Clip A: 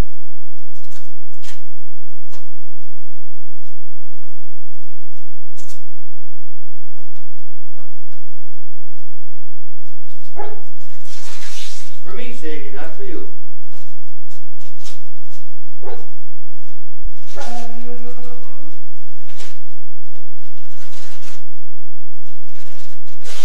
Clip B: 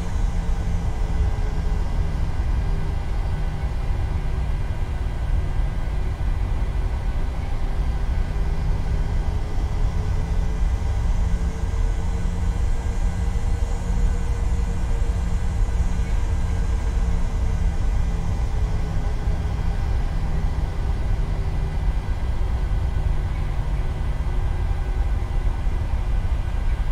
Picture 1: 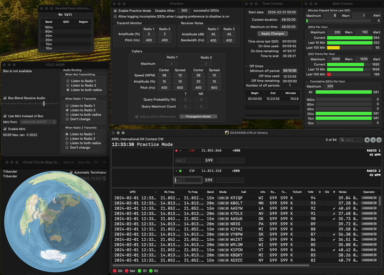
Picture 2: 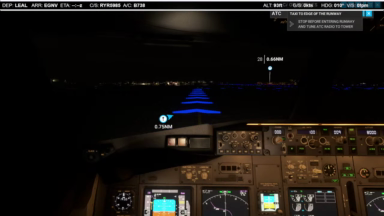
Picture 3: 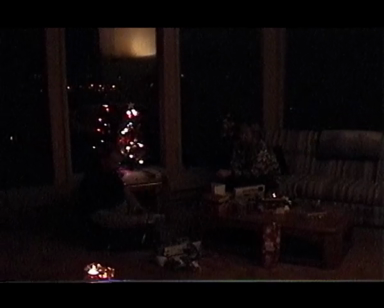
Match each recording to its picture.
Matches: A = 3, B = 2